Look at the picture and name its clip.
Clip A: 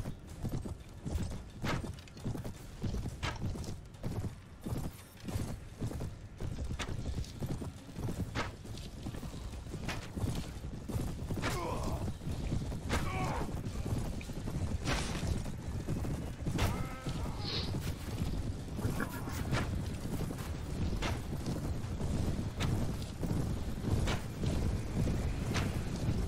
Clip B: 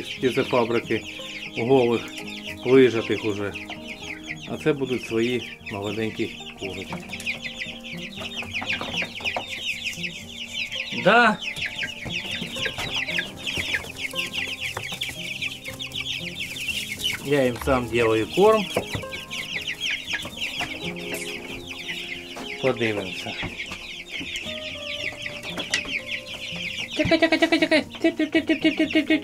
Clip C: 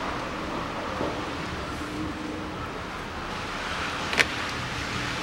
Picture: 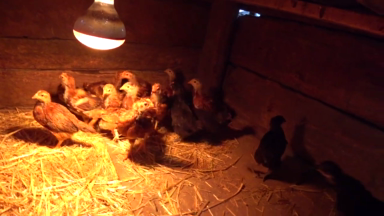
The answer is B